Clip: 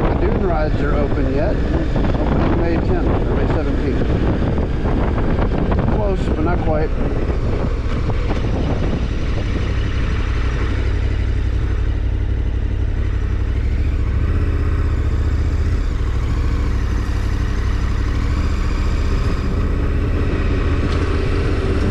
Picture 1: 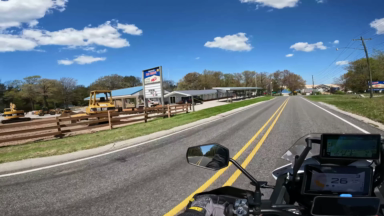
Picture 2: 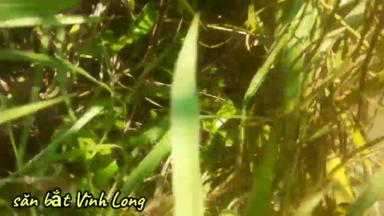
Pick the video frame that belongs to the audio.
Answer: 1